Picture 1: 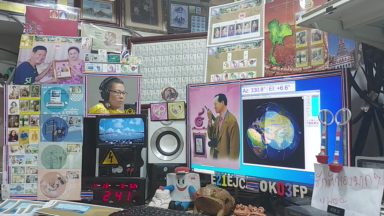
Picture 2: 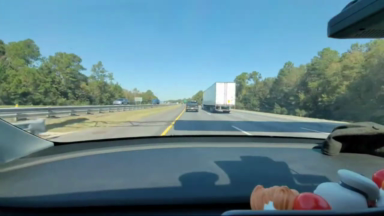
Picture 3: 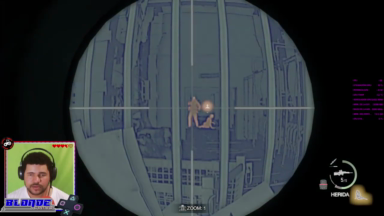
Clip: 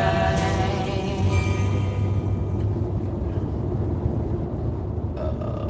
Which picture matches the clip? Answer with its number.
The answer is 2